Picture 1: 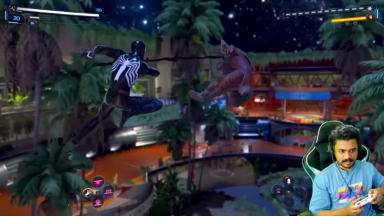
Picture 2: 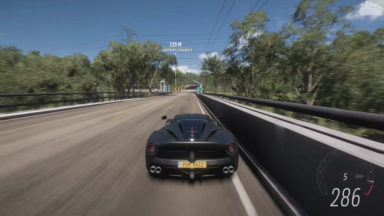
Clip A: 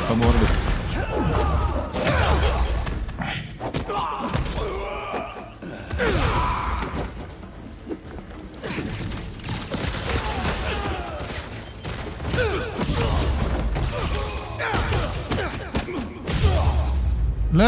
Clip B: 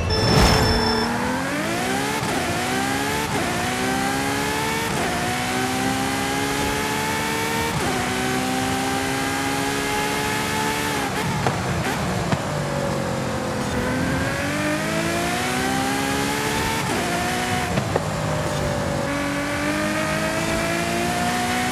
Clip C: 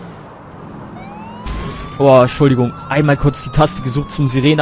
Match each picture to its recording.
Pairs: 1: A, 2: B